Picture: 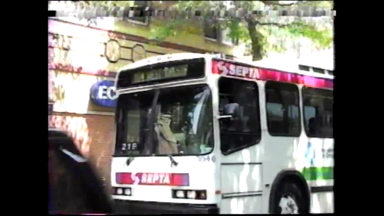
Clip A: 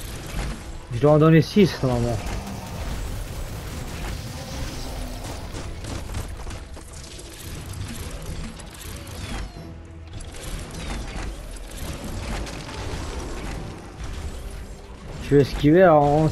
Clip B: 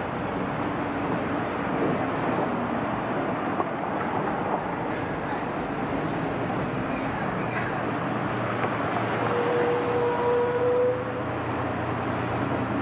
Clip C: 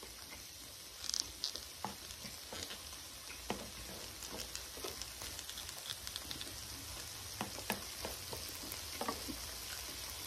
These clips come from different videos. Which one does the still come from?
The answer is B